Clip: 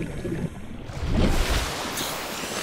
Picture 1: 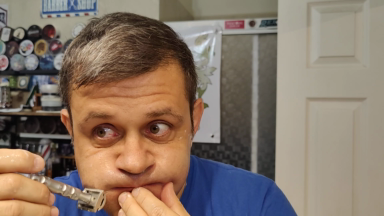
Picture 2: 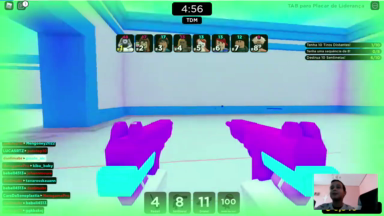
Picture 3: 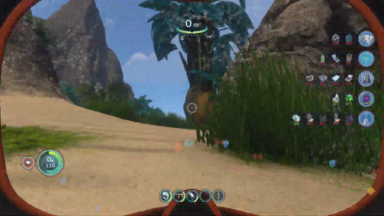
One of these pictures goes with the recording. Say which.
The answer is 3